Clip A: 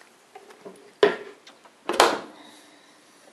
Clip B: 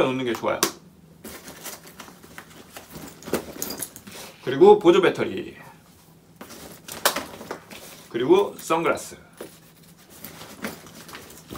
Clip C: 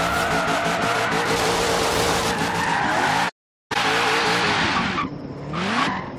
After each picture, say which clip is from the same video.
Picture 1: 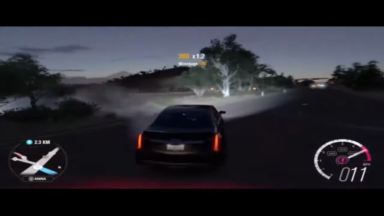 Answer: C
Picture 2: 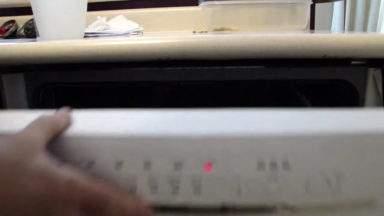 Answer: A